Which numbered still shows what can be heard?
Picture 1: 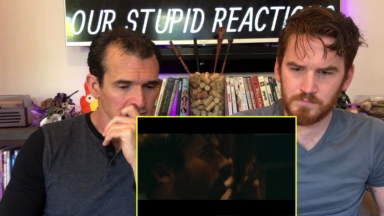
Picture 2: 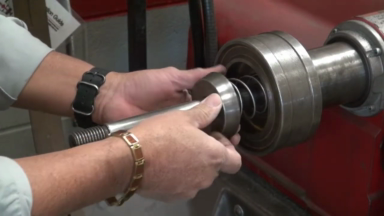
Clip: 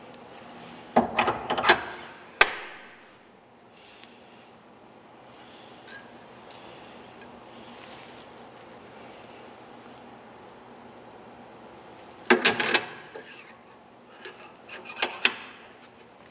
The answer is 2